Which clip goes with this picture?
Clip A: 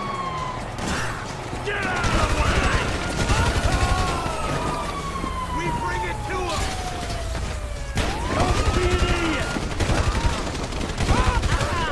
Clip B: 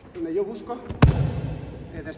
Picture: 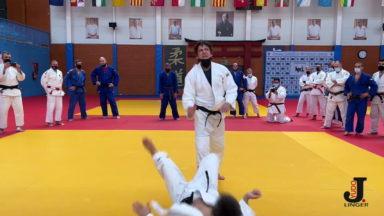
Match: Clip B